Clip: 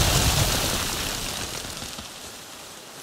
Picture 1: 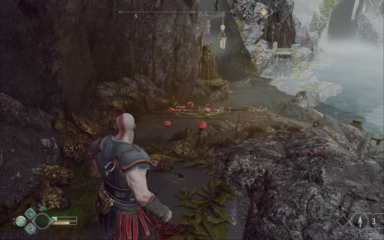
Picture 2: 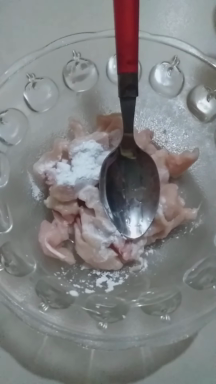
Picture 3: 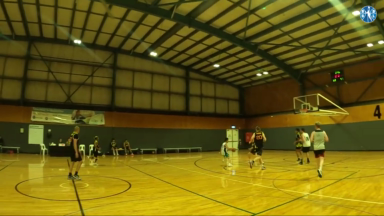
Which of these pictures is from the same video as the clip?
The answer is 1